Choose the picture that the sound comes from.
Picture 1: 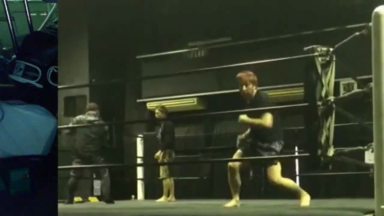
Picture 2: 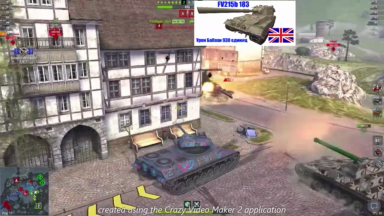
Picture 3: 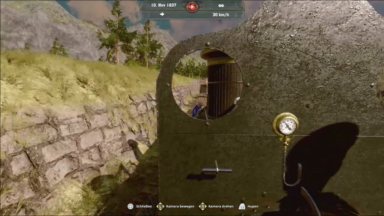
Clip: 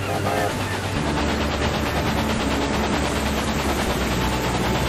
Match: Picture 3